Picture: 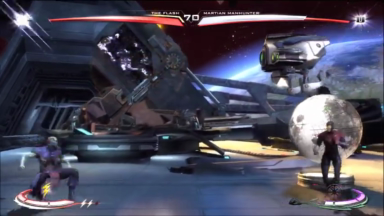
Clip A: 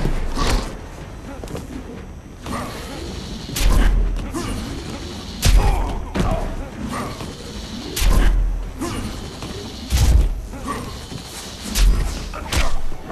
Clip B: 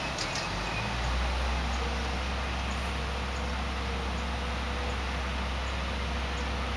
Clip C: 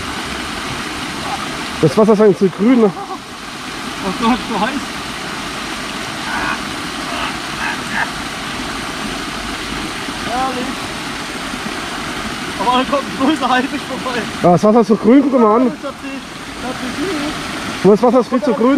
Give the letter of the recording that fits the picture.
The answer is A